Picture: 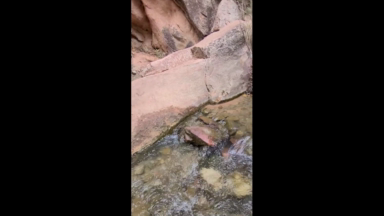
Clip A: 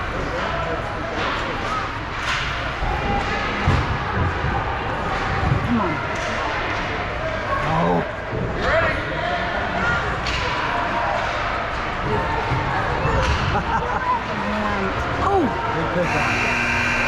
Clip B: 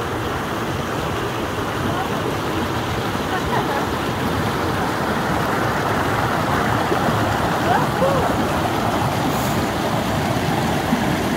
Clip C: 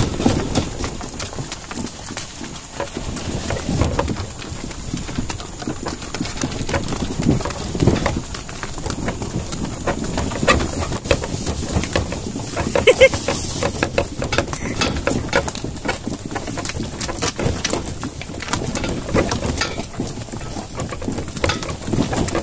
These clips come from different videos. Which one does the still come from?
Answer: B